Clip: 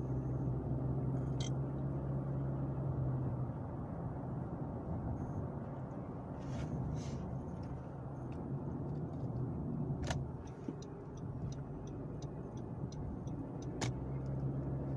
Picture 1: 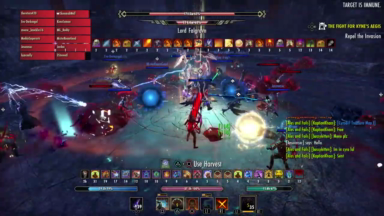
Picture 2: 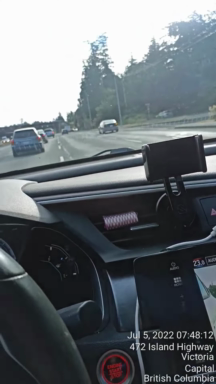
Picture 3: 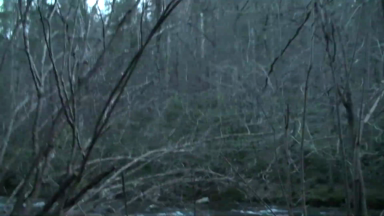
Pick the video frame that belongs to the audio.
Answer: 2